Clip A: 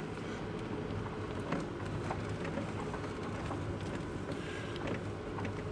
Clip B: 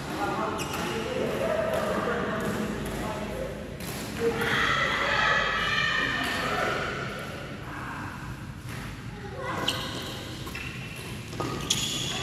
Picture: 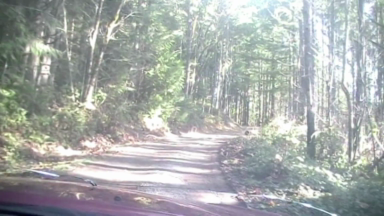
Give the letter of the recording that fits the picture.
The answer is A